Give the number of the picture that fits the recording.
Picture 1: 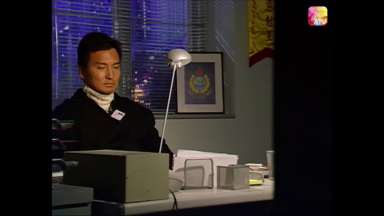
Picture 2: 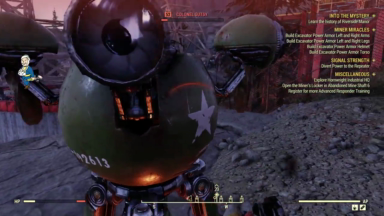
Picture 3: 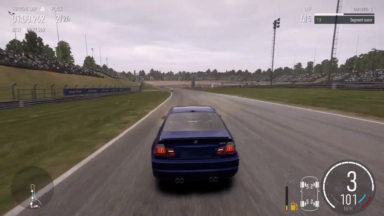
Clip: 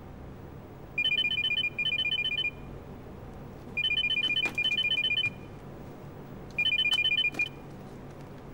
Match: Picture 1